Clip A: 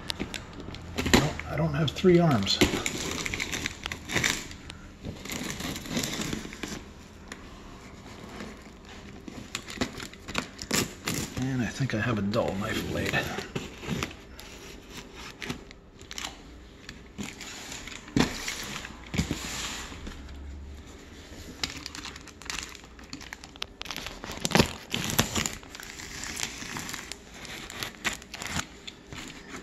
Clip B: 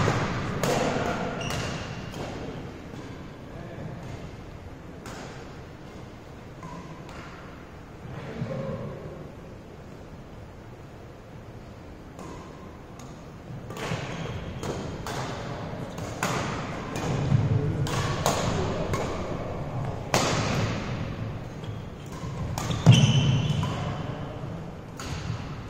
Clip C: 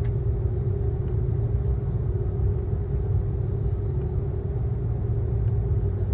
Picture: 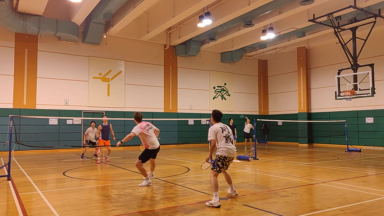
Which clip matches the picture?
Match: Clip B